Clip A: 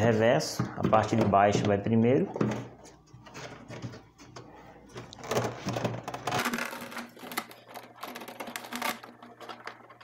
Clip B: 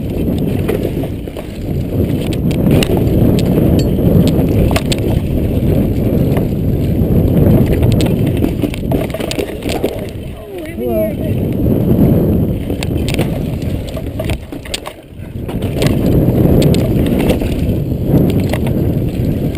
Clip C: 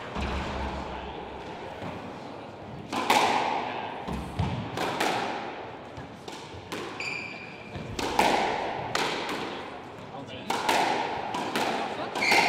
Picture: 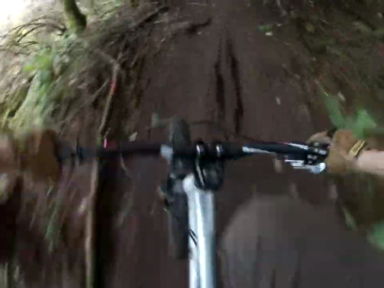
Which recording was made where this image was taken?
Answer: B